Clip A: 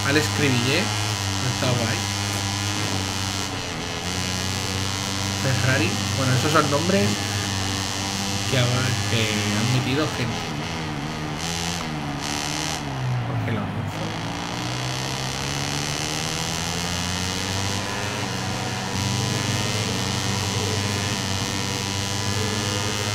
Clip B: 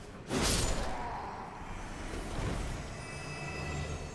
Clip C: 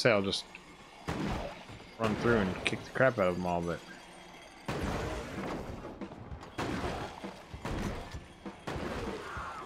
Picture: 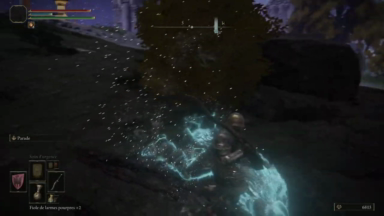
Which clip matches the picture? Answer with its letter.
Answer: B